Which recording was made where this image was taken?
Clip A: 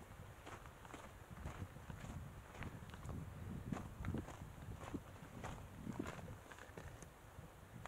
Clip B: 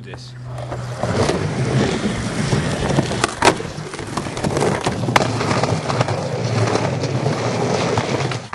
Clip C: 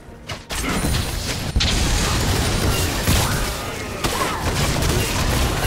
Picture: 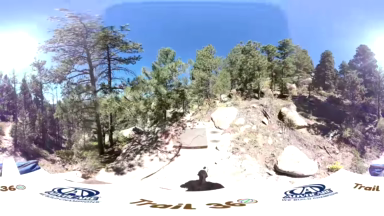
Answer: A